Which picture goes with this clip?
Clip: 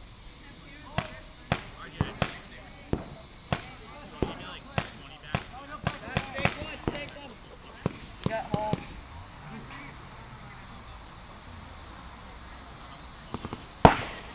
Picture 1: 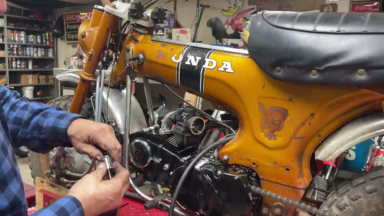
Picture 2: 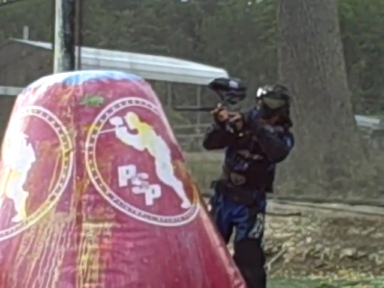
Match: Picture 2